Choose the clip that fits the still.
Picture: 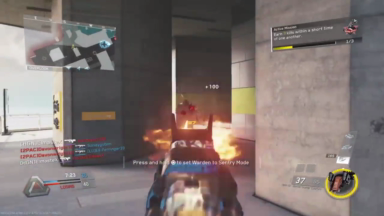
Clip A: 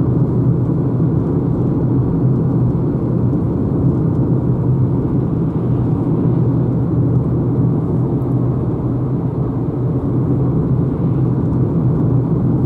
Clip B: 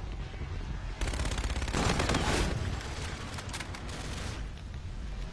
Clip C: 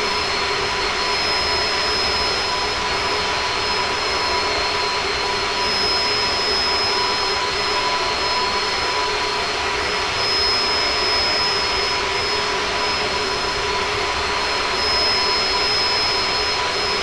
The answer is B